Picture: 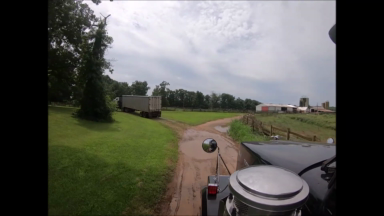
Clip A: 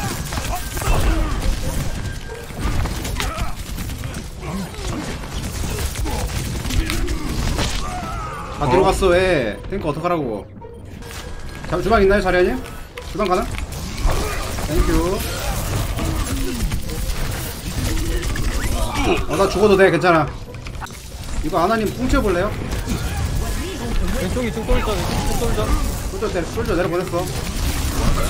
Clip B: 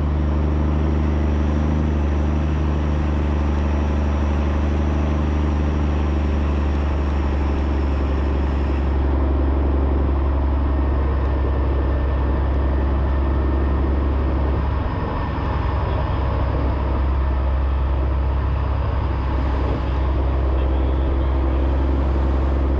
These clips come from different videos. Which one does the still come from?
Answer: B